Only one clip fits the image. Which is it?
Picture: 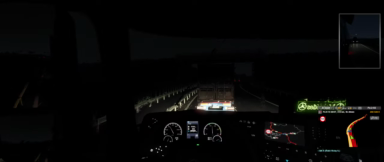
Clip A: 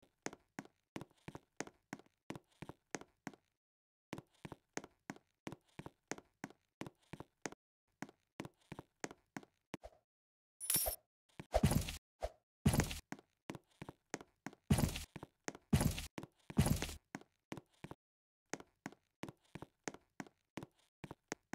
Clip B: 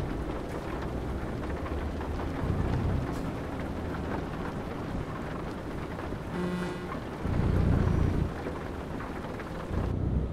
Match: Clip B